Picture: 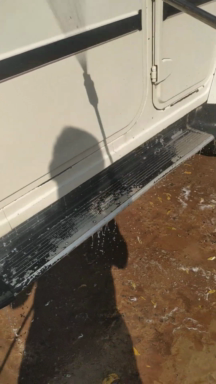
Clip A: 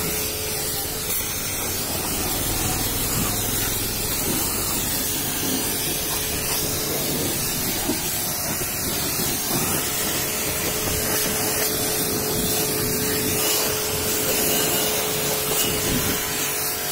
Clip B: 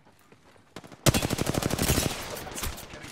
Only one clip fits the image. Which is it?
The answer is A